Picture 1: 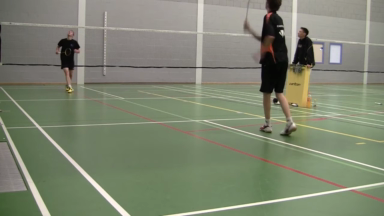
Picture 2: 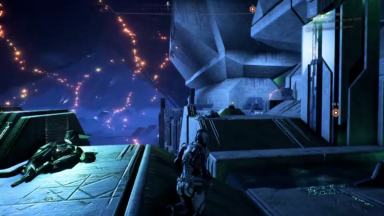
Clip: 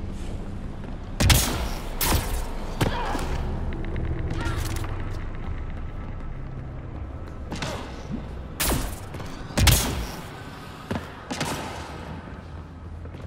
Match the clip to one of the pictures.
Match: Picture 2